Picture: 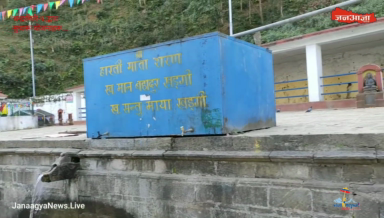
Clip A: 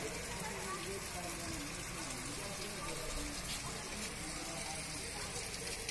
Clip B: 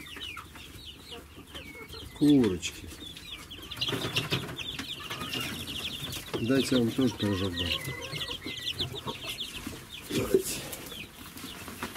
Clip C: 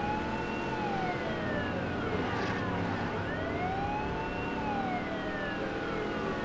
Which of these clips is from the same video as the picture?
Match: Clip A